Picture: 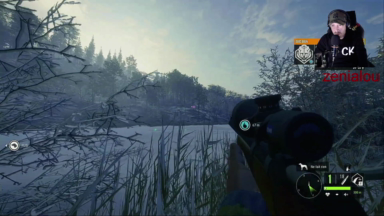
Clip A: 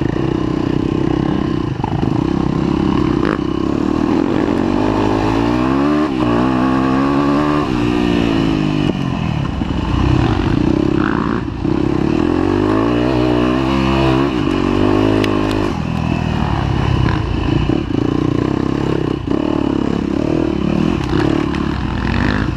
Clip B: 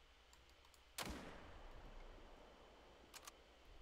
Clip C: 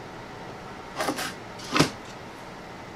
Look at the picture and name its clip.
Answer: B